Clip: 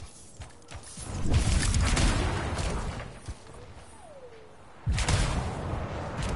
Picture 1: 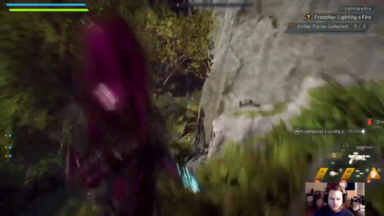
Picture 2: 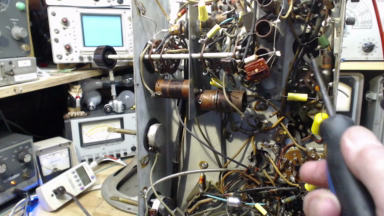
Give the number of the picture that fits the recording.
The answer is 1